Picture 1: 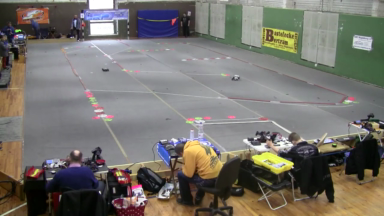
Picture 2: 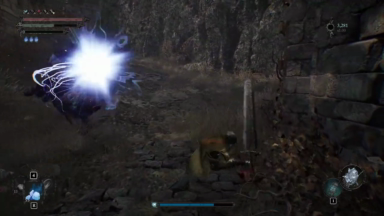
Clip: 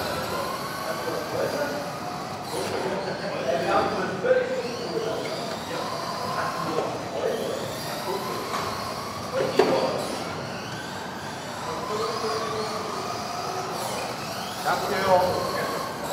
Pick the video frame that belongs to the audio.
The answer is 1